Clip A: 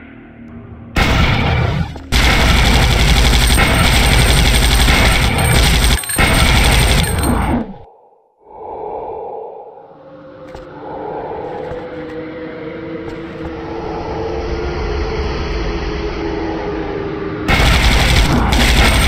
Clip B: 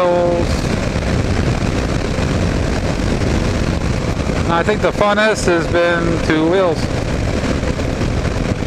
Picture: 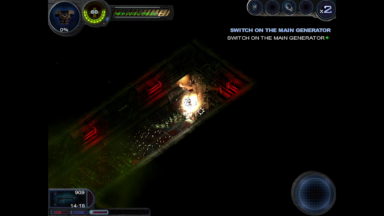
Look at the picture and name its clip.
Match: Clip A